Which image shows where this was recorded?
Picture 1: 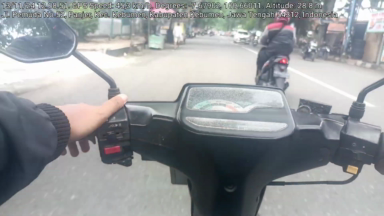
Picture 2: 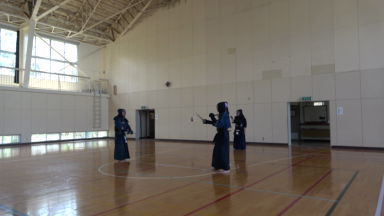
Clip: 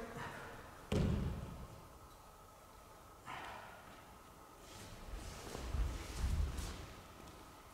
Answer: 2